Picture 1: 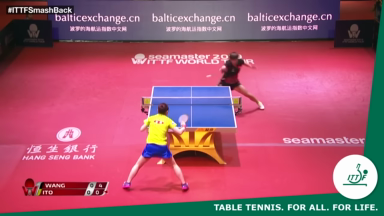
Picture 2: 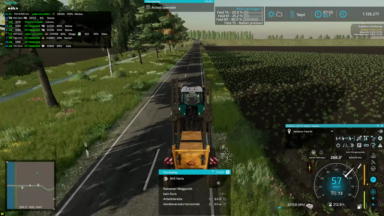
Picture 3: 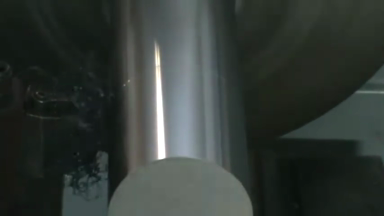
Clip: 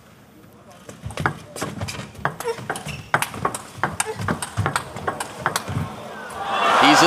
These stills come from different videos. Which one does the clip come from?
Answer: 1